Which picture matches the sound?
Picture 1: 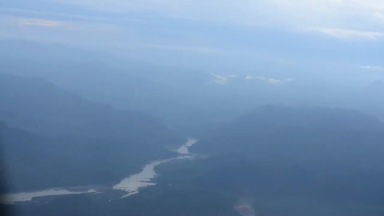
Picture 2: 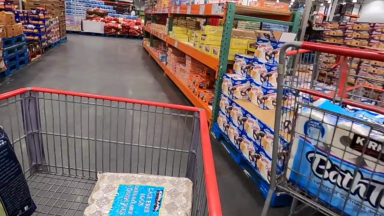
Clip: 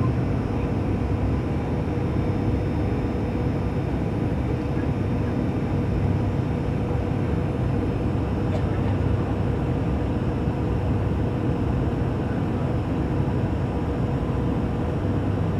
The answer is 1